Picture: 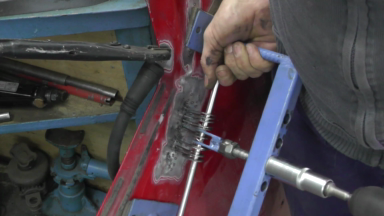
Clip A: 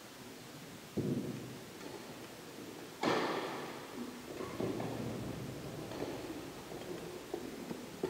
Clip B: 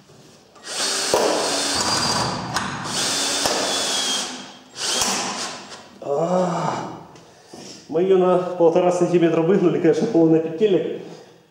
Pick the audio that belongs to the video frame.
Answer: B